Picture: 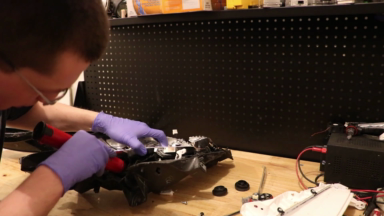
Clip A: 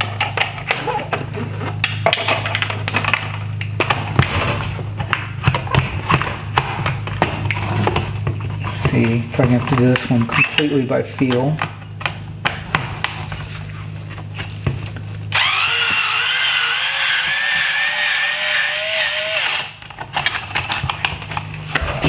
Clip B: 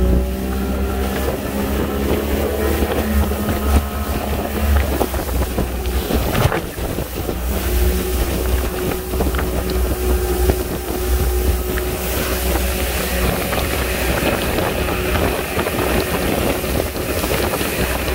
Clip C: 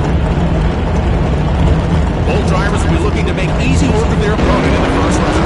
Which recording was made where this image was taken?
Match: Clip A